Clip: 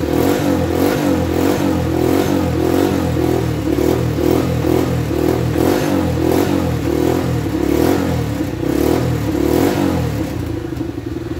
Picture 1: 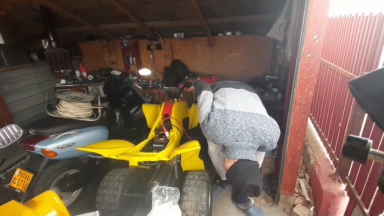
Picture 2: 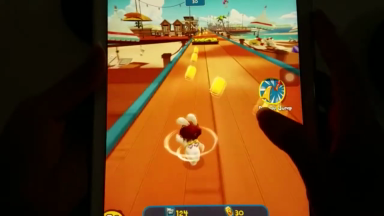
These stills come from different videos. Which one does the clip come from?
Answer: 1